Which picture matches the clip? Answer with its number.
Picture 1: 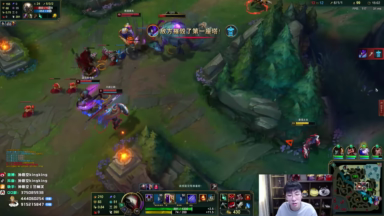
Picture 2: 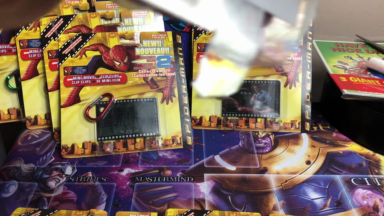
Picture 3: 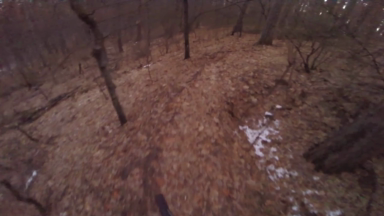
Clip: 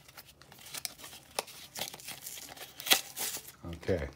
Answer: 2